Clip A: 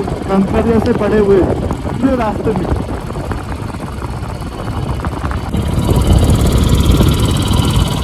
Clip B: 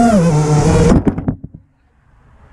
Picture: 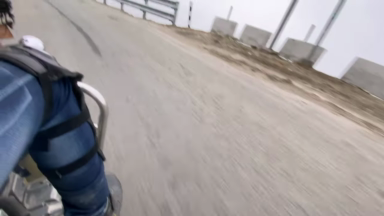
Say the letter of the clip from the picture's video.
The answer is A